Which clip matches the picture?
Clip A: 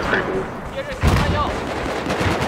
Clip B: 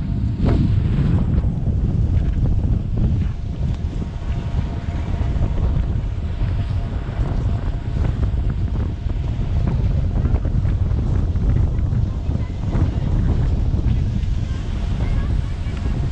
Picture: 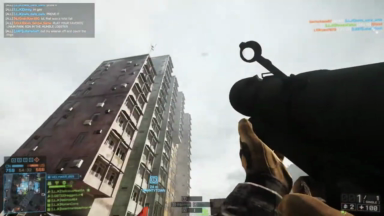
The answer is A